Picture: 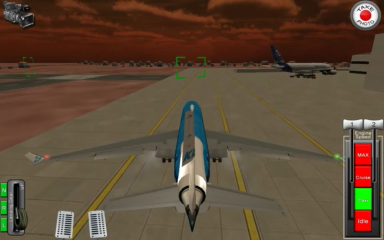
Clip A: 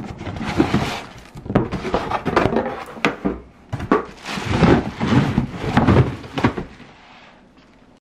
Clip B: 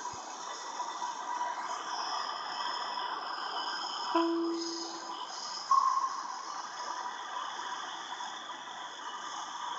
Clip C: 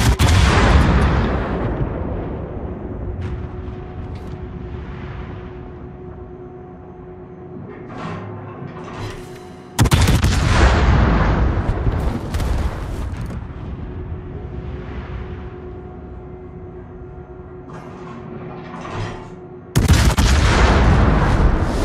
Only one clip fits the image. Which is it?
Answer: B